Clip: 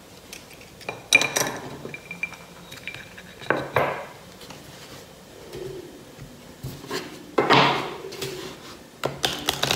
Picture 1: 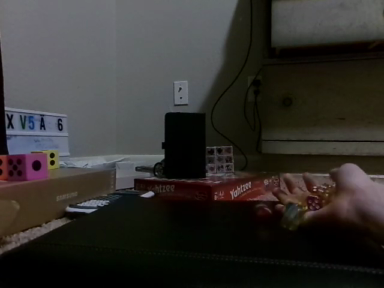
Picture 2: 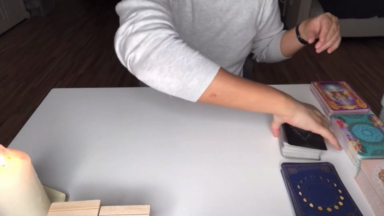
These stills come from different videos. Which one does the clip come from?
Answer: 2